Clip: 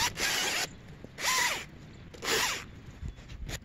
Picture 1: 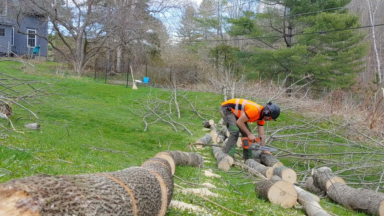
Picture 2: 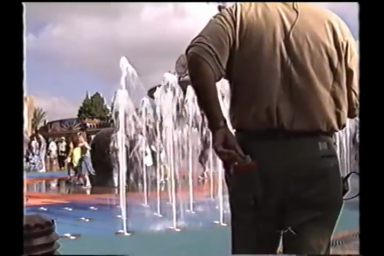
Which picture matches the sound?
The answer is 1